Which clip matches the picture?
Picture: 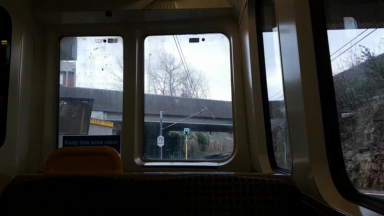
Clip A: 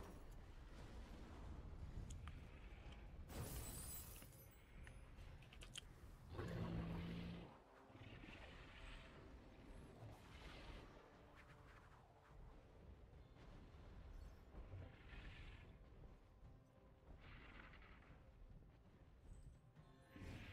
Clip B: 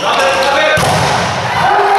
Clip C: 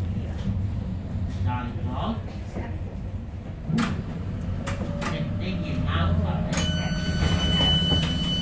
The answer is C